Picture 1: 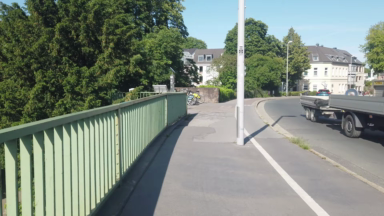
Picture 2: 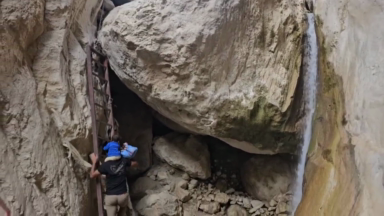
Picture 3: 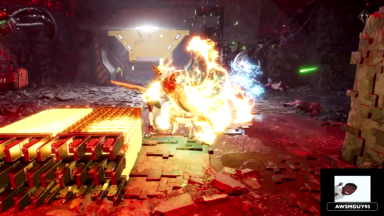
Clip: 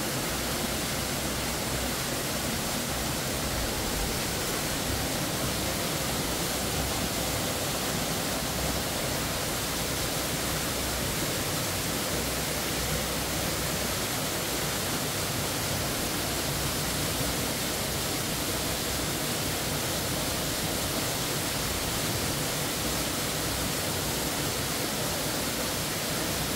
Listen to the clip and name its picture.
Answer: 2